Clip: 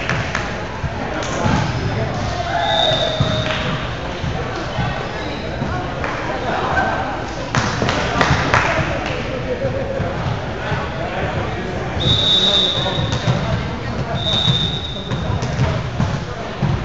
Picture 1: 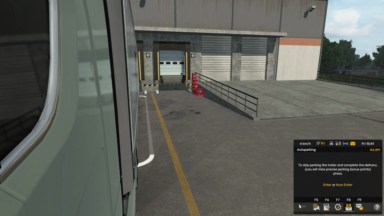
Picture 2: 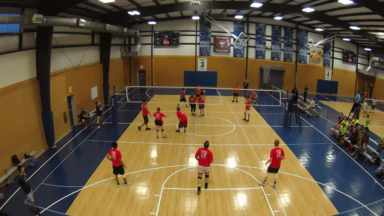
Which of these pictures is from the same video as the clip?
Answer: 2